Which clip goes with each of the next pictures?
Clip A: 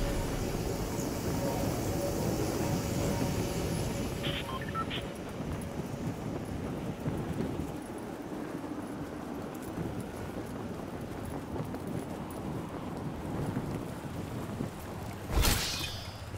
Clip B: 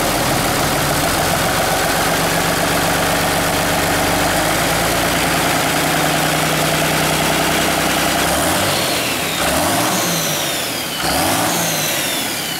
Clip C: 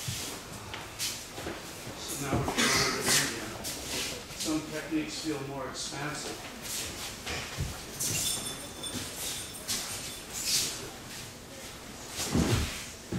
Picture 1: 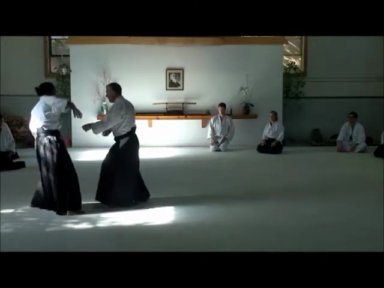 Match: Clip C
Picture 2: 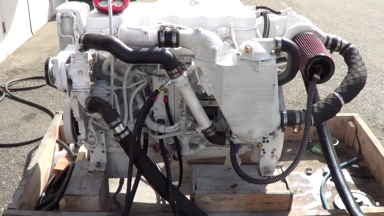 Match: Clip B